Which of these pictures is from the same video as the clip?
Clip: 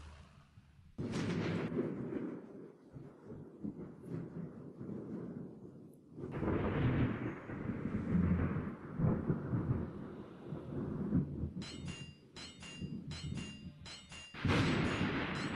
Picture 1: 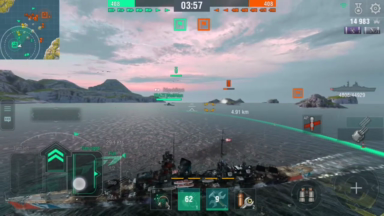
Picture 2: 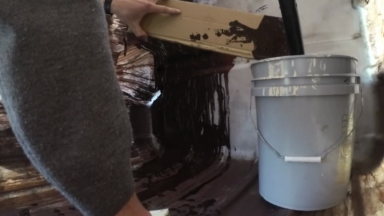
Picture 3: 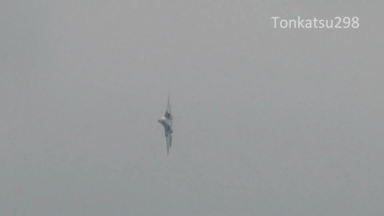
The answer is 1